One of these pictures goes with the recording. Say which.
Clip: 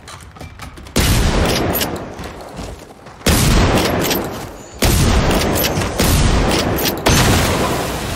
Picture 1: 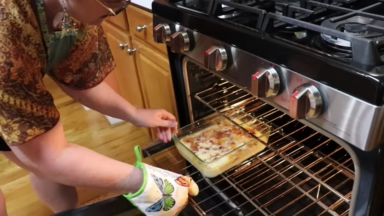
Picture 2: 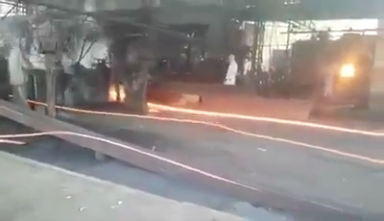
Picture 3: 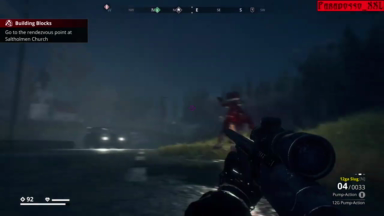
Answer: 3